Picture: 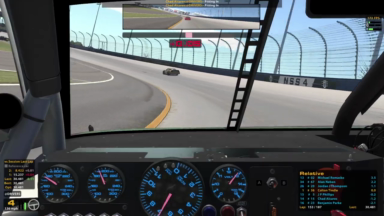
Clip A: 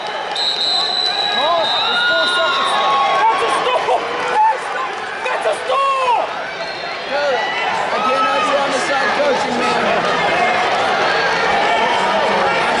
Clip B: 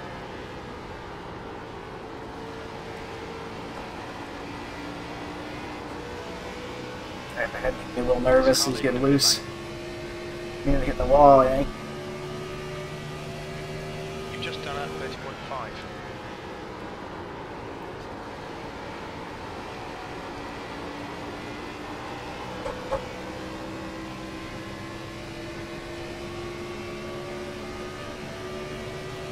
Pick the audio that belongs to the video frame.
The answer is B